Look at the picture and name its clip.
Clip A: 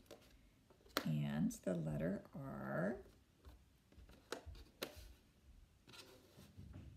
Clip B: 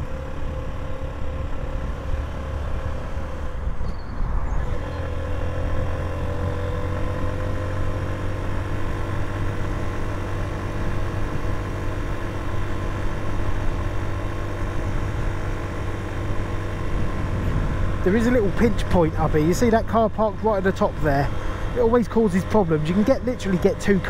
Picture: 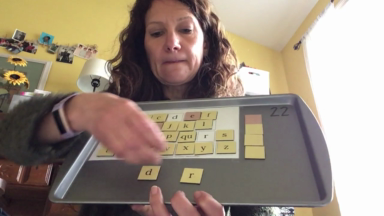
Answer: A